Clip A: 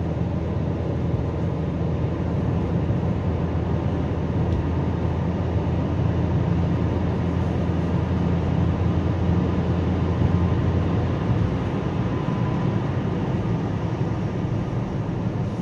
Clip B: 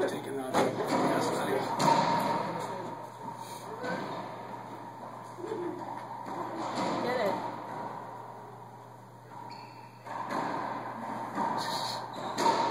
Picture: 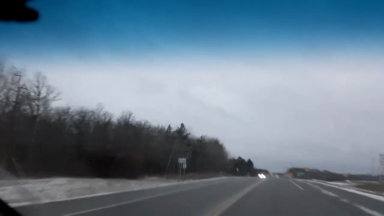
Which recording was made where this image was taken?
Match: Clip A